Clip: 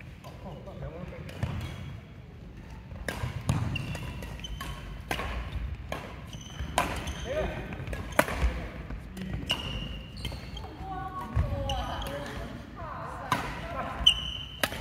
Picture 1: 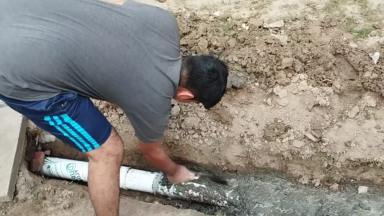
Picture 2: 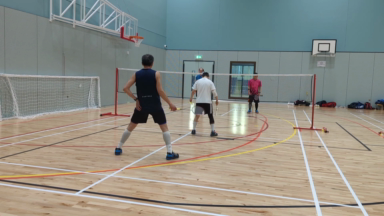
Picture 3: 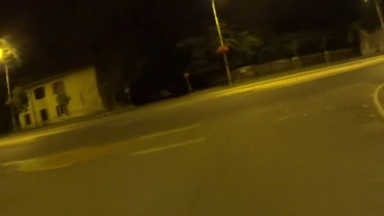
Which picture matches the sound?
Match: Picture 2